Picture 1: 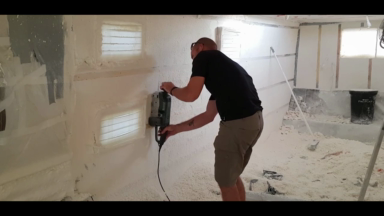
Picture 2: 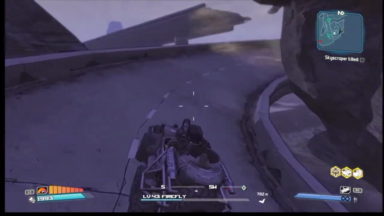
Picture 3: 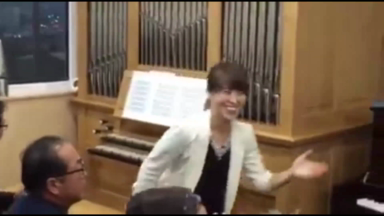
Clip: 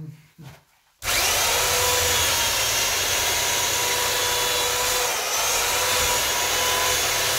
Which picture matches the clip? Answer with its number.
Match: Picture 1